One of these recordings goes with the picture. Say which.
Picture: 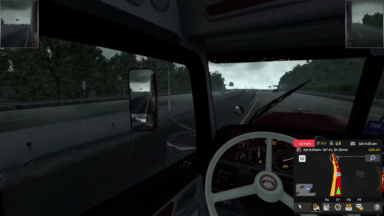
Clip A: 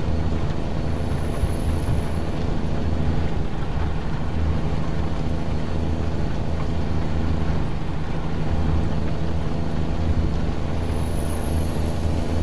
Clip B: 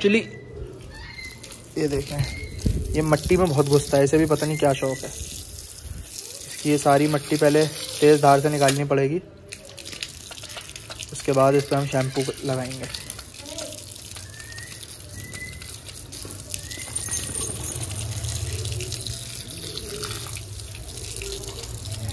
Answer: A